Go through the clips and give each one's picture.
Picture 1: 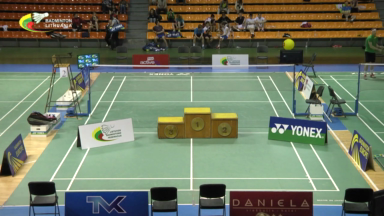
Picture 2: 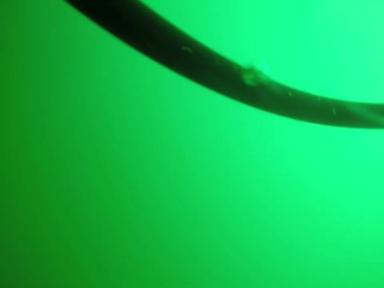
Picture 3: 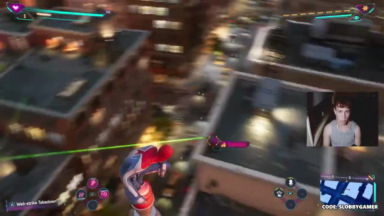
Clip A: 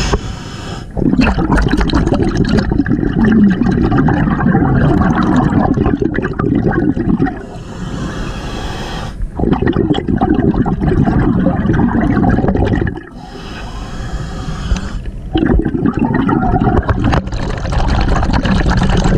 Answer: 2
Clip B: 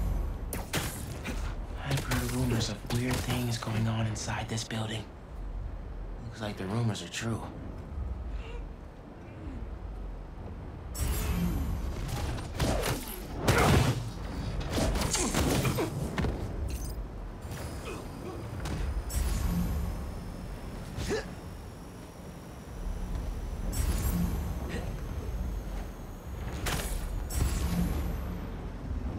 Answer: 3